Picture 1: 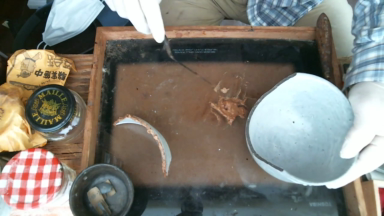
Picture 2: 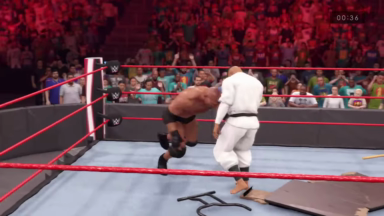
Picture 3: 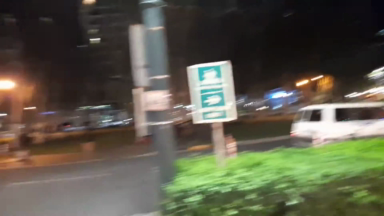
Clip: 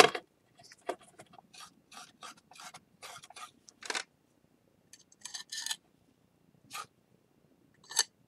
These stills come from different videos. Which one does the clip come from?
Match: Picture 1